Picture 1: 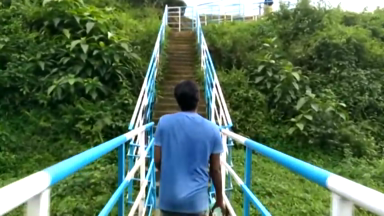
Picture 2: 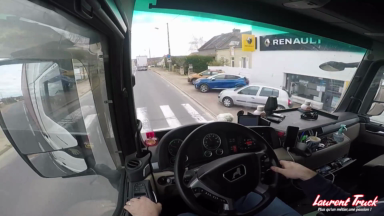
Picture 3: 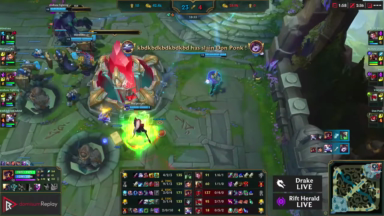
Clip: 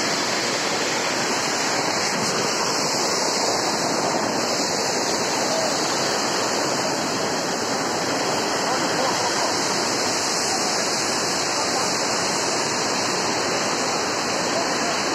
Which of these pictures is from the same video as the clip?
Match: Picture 1